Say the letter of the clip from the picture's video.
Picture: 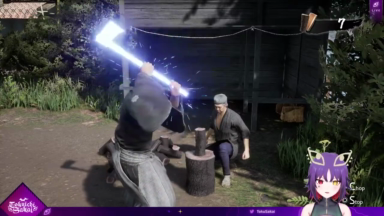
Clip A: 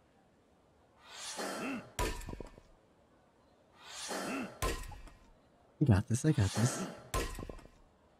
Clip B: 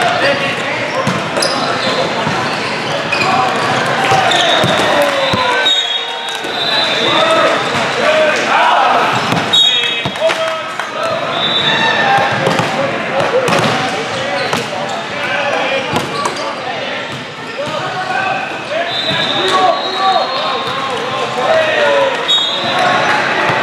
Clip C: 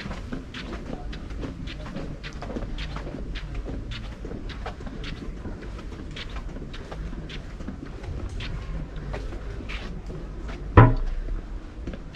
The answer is A